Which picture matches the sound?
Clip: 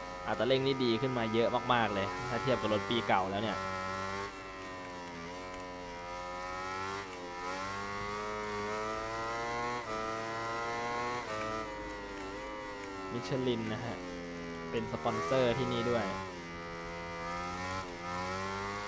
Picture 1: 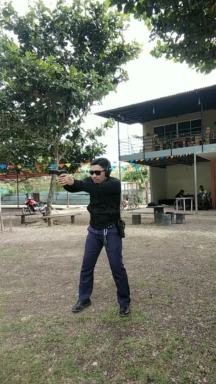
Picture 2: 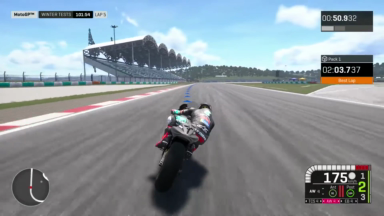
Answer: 2